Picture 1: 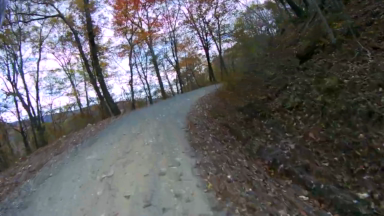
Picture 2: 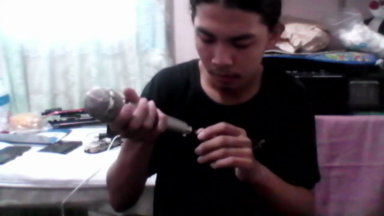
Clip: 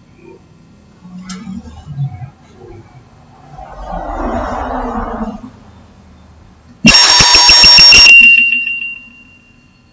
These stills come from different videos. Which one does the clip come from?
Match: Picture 2